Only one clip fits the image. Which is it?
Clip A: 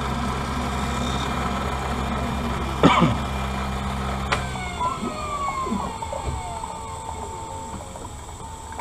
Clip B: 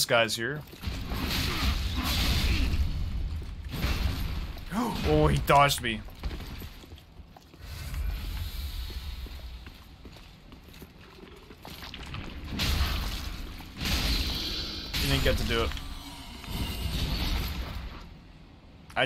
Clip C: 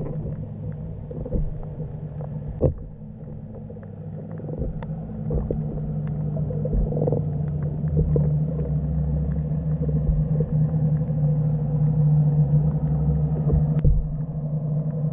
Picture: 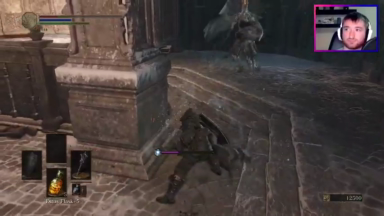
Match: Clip B